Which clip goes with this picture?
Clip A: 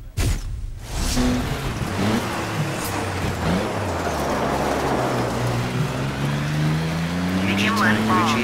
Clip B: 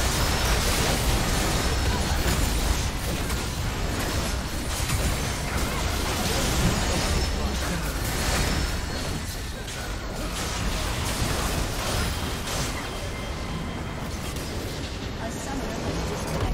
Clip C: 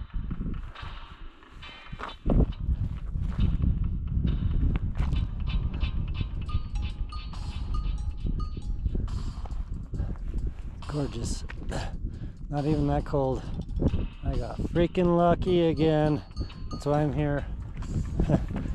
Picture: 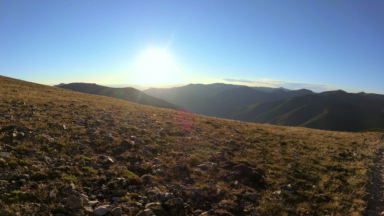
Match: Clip C